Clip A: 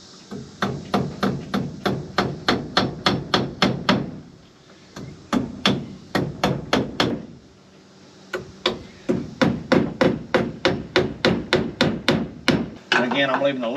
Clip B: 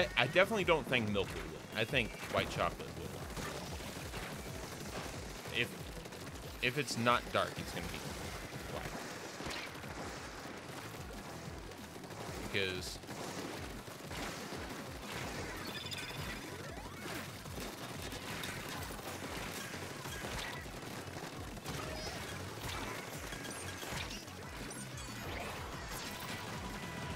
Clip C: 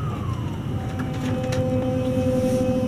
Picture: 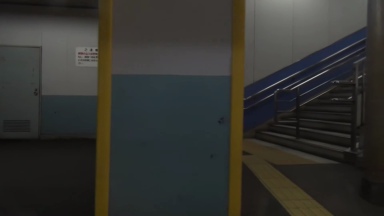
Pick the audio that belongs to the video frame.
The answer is C